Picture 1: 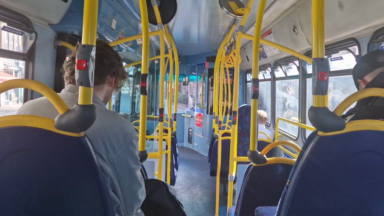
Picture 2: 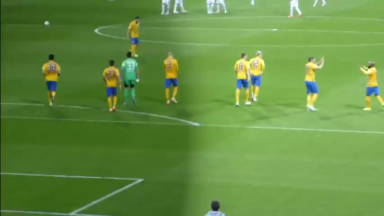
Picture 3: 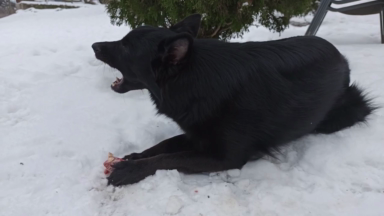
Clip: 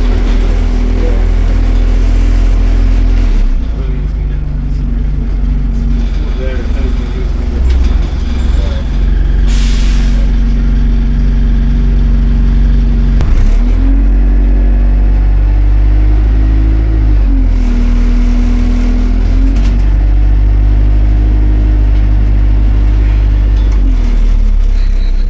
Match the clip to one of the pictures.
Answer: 1